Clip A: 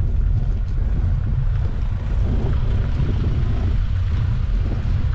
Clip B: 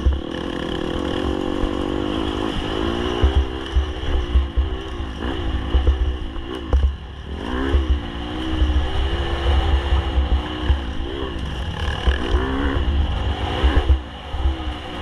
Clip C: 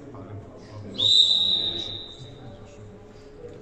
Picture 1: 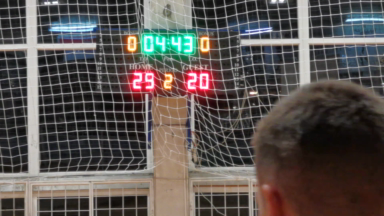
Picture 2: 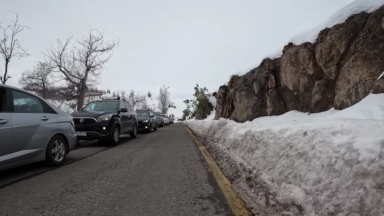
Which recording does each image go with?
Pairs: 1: C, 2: A